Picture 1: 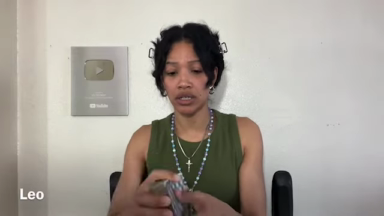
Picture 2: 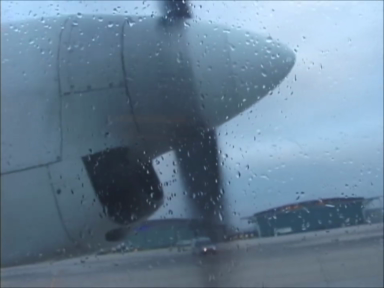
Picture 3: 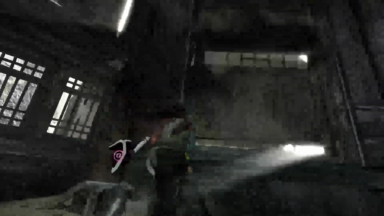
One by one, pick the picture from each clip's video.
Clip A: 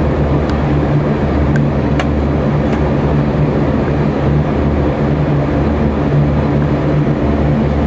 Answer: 2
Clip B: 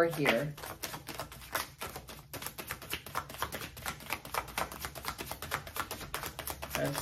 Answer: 1